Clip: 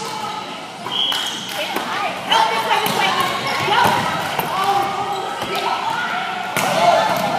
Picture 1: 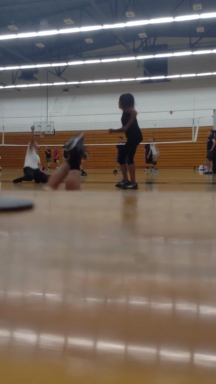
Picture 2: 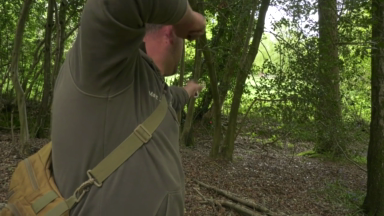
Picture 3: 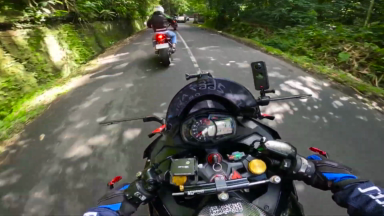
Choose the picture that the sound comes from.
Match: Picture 1